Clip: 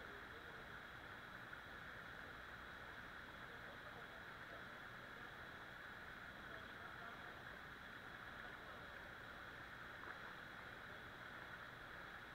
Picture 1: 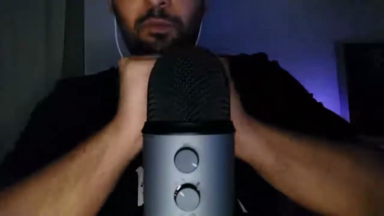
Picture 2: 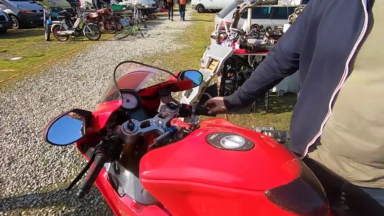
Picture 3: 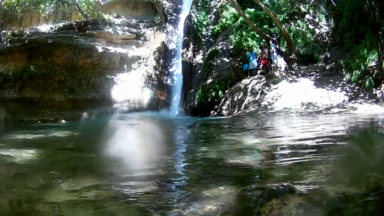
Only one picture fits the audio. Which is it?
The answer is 3